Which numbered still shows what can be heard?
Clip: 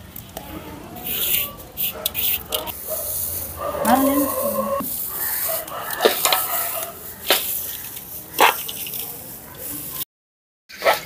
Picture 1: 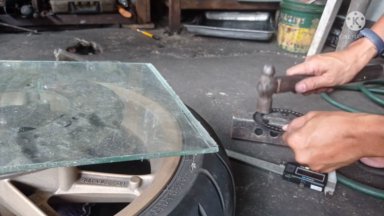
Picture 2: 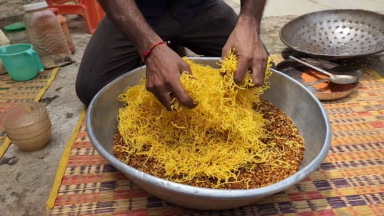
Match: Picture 2